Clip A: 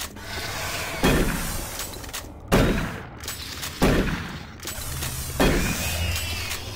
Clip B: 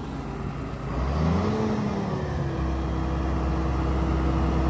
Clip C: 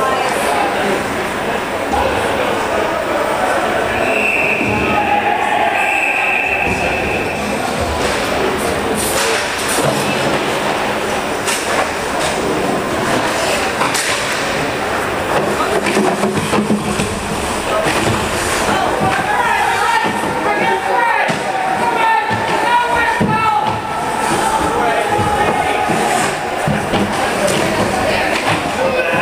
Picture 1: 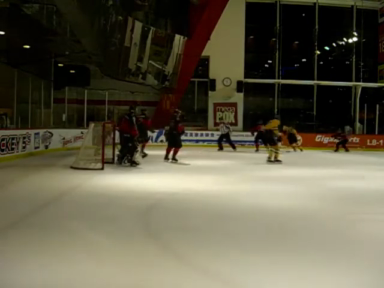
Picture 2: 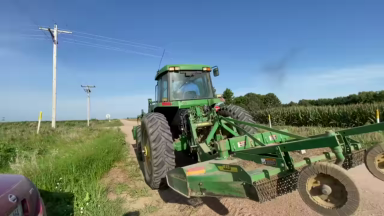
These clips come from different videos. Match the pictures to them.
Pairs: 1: C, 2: B